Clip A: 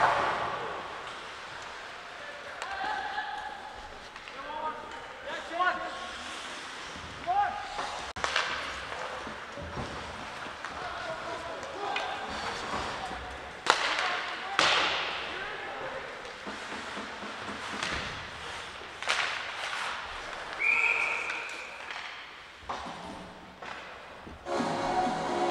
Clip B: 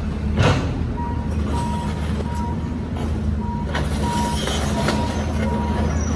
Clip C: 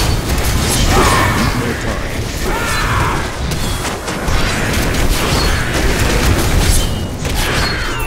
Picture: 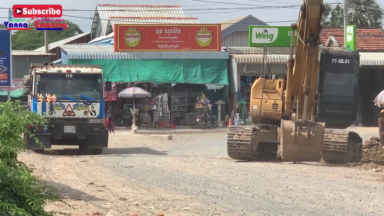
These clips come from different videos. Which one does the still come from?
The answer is B